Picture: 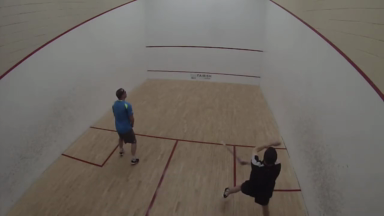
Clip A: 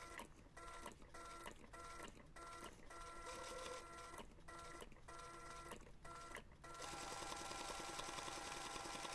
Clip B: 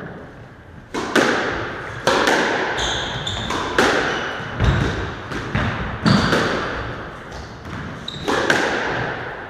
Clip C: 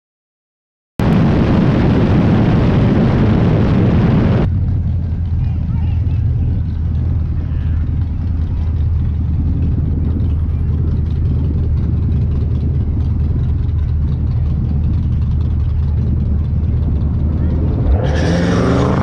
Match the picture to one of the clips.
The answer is B